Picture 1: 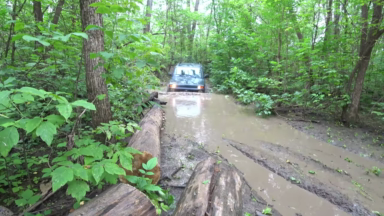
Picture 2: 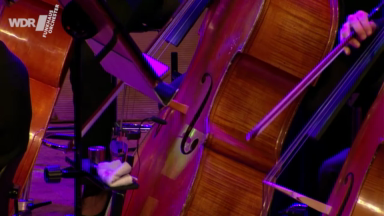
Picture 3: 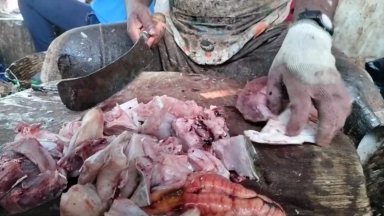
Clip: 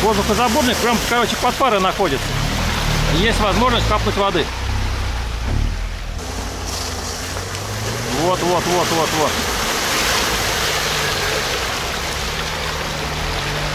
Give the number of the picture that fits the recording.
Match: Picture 1